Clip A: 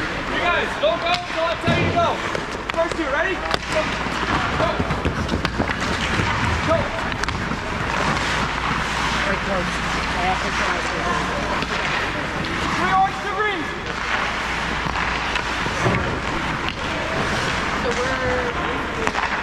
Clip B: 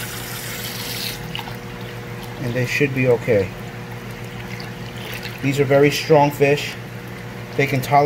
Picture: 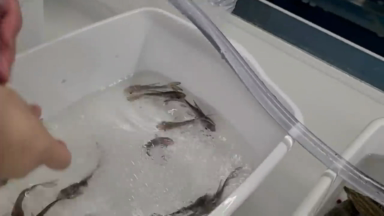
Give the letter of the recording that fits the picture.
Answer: B